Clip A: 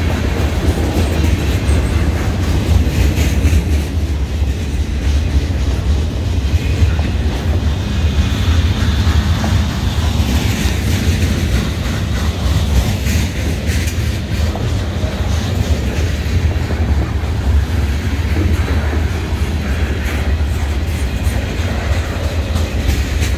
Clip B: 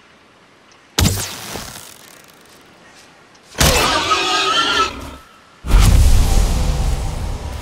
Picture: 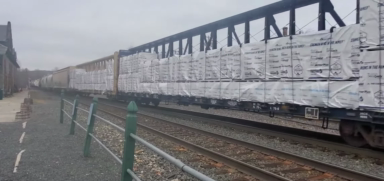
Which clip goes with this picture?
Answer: A